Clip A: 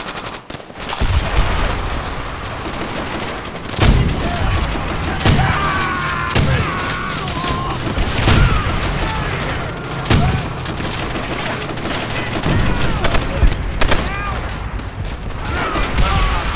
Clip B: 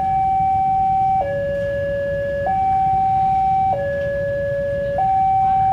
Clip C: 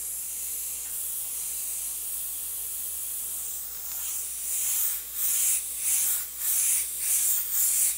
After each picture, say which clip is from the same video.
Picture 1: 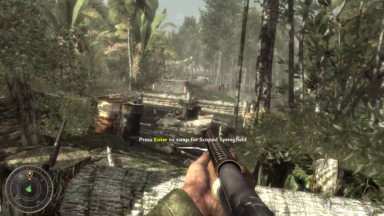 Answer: A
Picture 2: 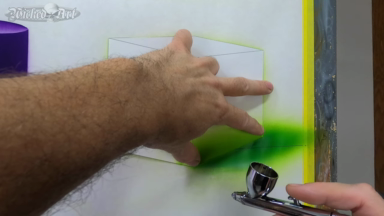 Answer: C